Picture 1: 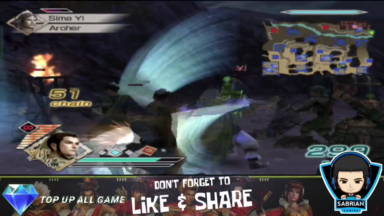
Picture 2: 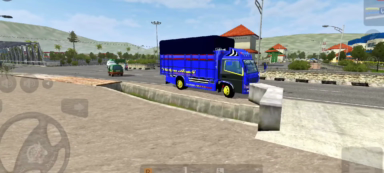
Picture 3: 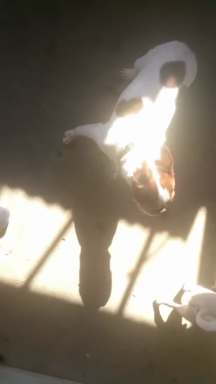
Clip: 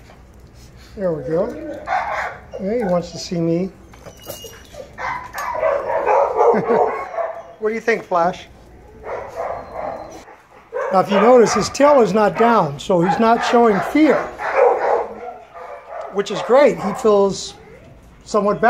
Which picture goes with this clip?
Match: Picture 3